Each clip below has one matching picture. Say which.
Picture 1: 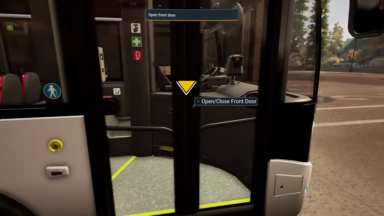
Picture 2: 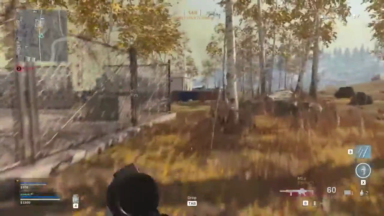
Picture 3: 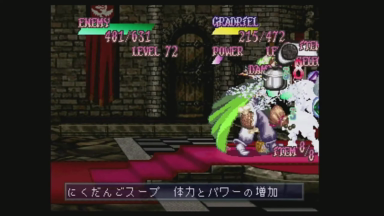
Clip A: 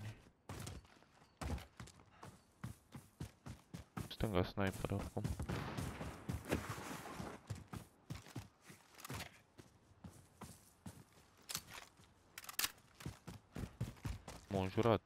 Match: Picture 2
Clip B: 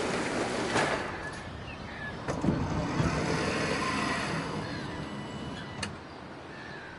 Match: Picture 1